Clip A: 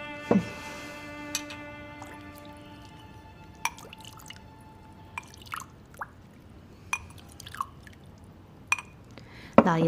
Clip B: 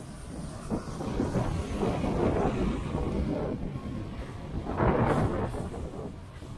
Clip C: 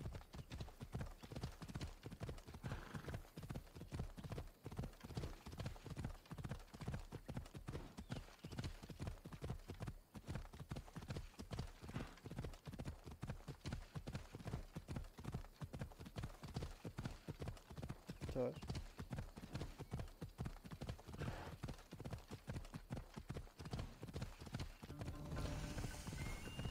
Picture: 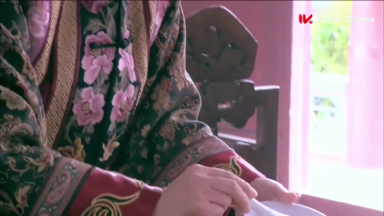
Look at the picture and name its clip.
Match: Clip A